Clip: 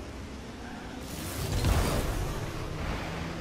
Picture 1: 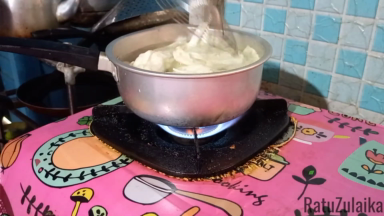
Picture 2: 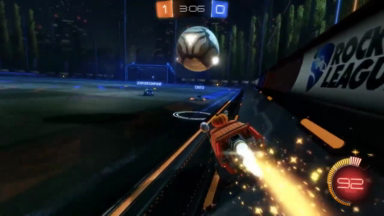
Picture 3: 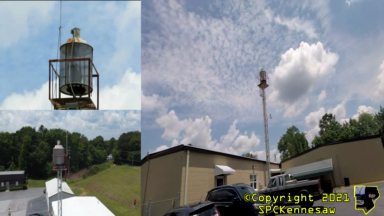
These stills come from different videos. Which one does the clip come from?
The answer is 2